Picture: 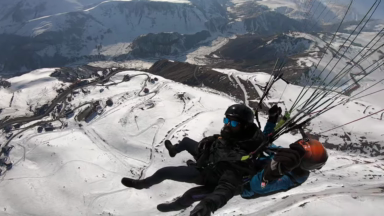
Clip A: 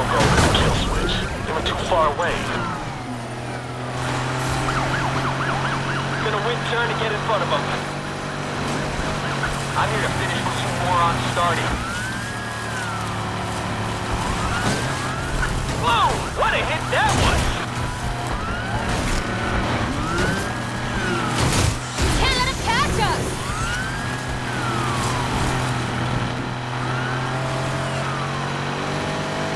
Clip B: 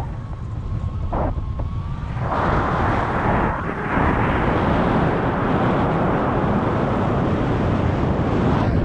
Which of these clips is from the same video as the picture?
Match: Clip B